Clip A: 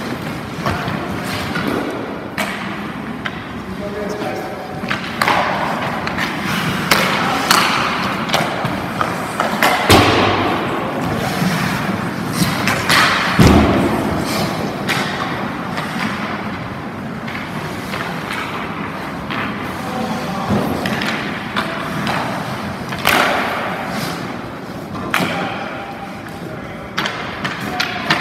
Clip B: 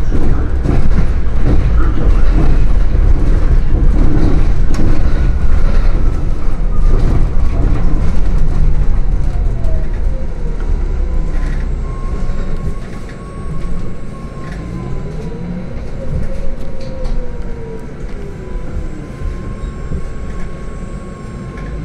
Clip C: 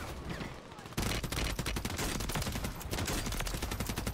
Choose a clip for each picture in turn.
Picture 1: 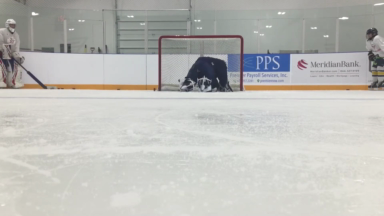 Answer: A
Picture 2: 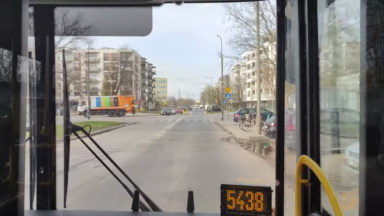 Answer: B